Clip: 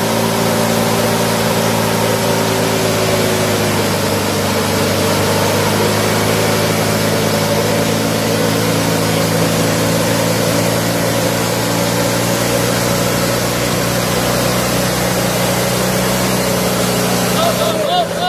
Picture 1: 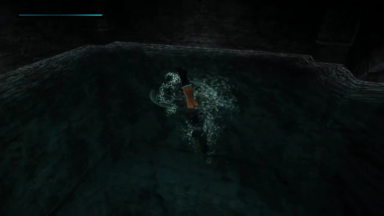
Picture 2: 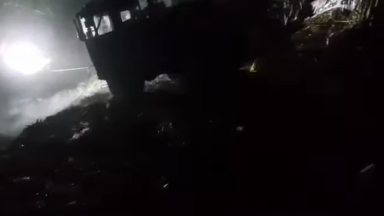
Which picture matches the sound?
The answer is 2